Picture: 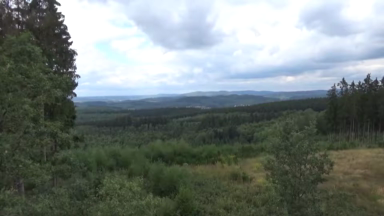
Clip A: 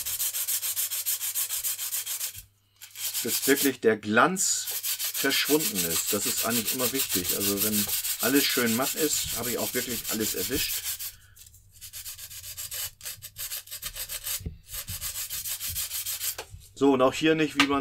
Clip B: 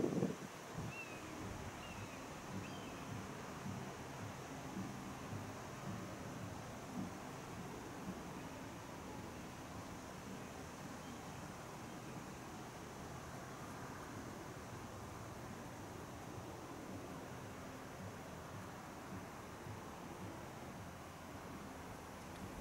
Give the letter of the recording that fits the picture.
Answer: B